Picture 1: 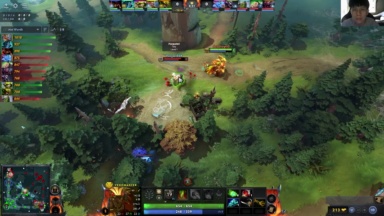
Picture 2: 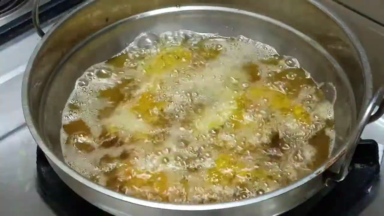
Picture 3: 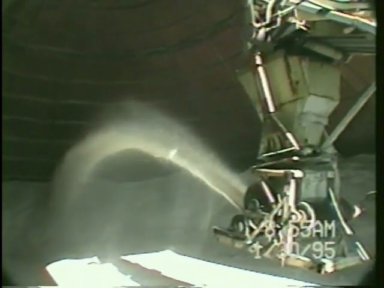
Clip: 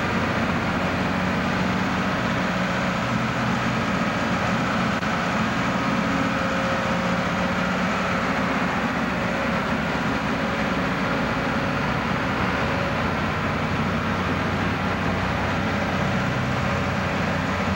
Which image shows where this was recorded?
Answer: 3